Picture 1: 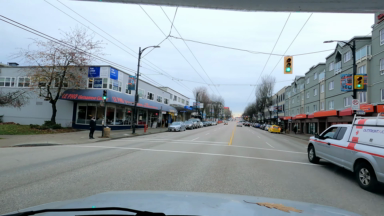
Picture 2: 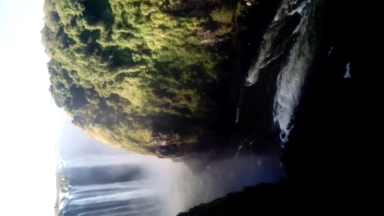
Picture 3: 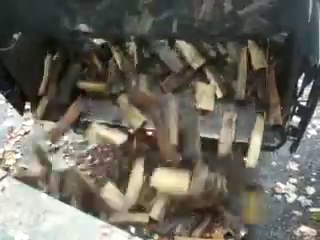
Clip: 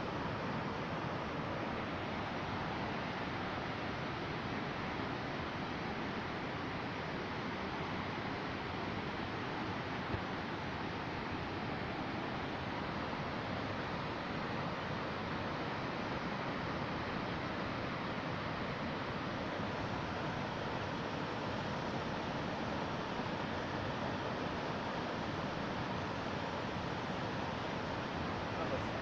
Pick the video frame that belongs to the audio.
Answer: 2